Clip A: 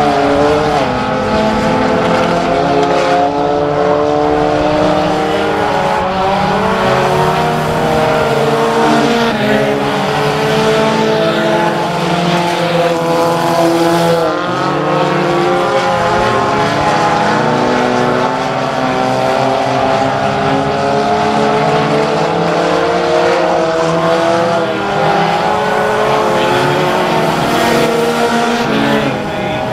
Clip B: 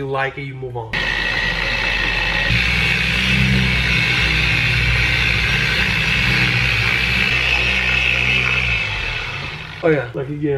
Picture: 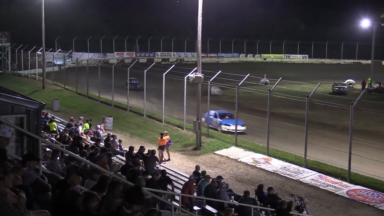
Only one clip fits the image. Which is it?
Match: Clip A